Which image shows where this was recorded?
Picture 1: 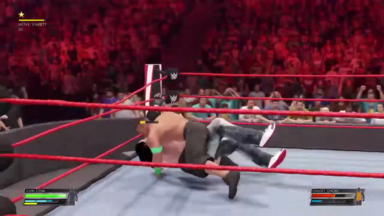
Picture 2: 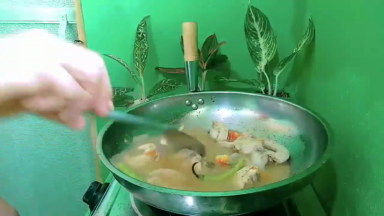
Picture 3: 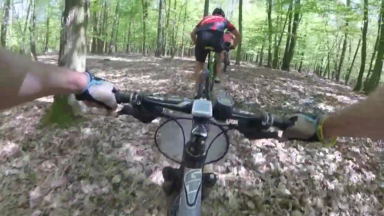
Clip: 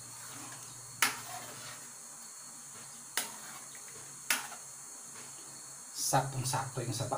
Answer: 2